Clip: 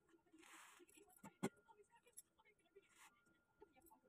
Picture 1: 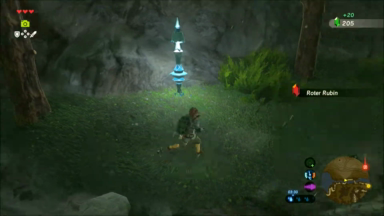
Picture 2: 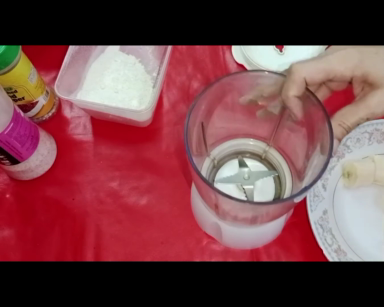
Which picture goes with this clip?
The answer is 2